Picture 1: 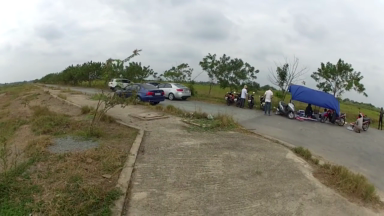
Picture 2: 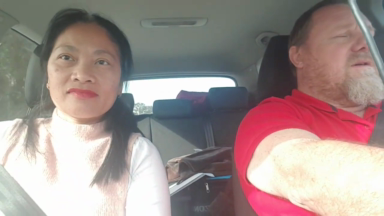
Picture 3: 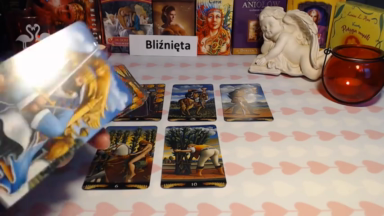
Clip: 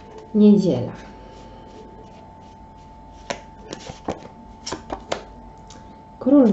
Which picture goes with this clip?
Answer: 3